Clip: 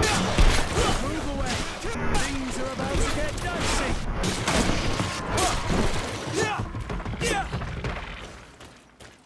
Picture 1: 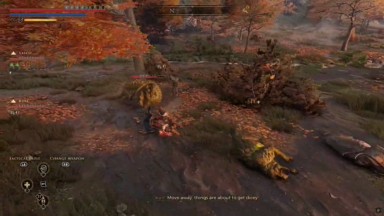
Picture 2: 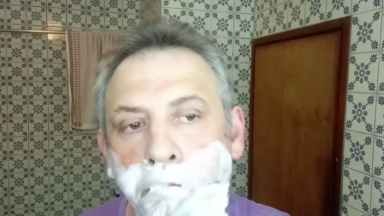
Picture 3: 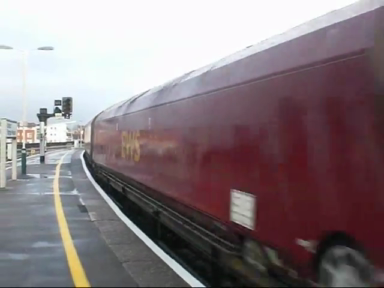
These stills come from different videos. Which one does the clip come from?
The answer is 1